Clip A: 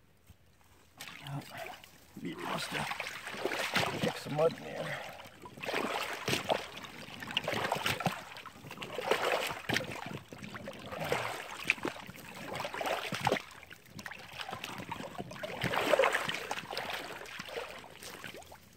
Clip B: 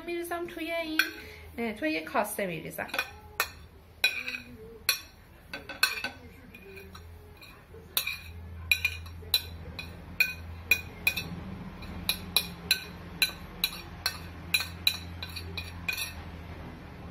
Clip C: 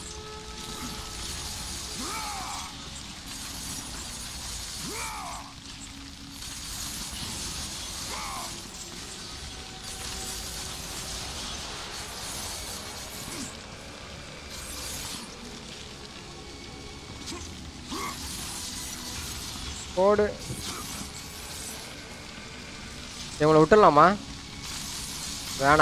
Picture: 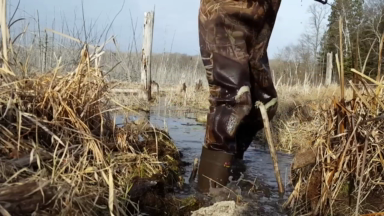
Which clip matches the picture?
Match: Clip A